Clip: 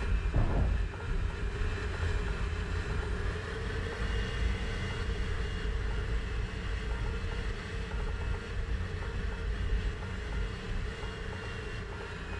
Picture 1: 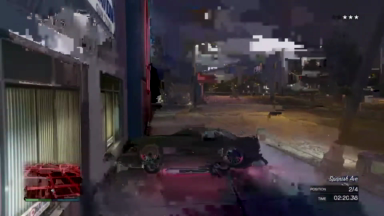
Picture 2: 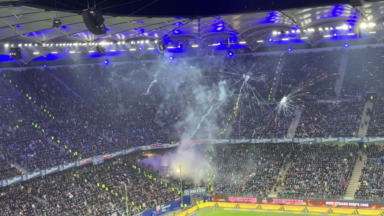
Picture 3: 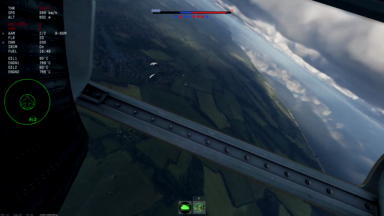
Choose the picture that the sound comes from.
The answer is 3